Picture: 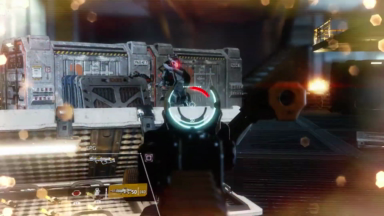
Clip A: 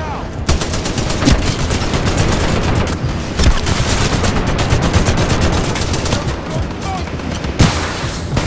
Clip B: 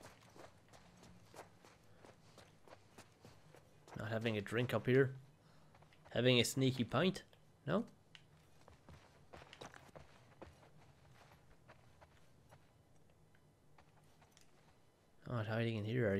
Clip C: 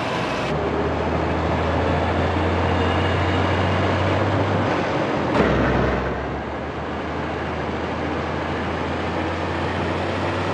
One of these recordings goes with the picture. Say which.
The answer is A